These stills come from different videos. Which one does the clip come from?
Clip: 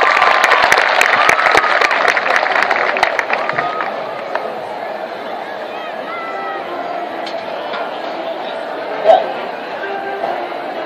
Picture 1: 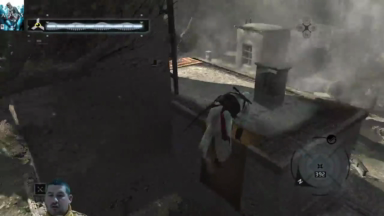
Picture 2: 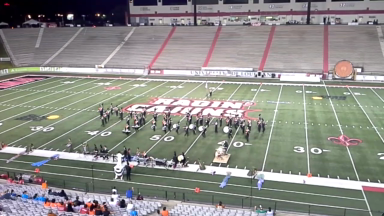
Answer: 2